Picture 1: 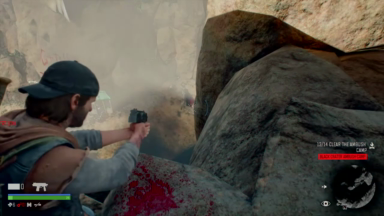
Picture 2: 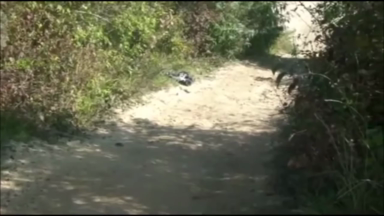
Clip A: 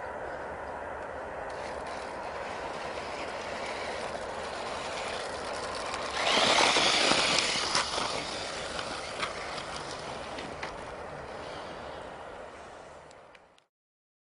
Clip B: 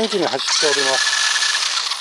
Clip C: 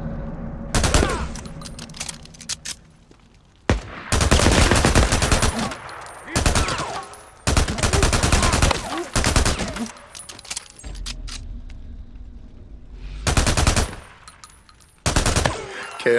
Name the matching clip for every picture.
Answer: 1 C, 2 A